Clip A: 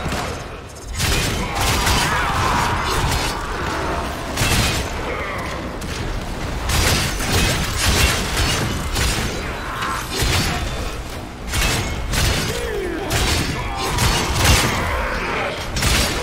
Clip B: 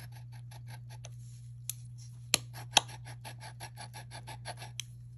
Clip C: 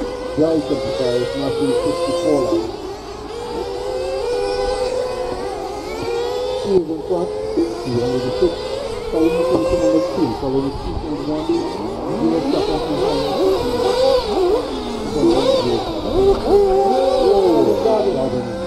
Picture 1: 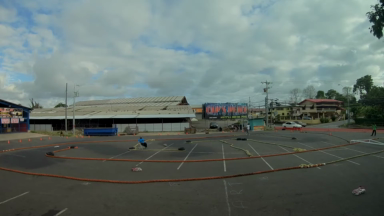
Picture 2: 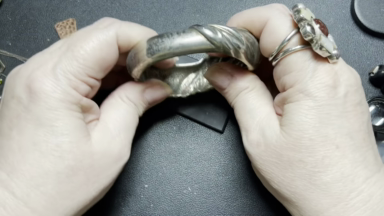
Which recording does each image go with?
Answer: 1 C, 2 B